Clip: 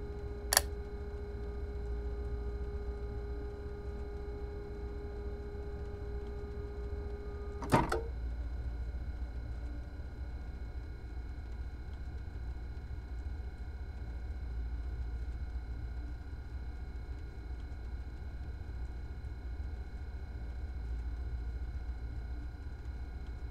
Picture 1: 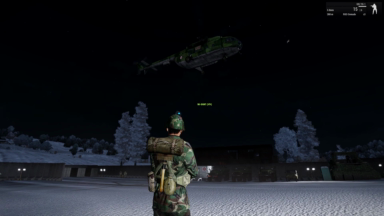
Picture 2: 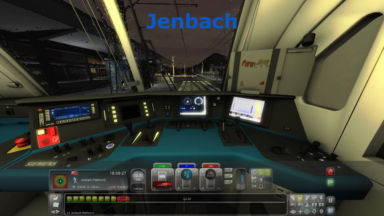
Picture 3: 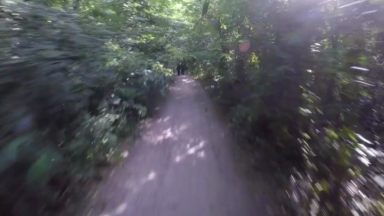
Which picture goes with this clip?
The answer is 2